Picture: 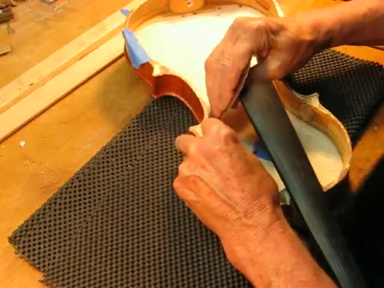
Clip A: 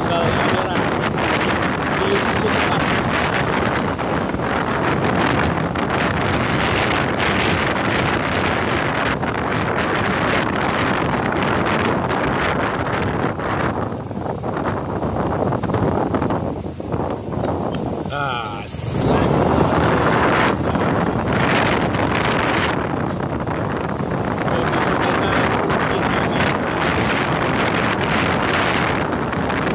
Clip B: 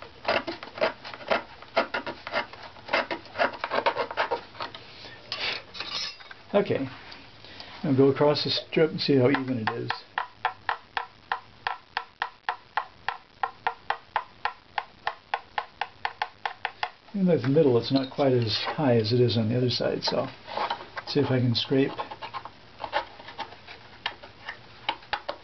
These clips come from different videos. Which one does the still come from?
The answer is B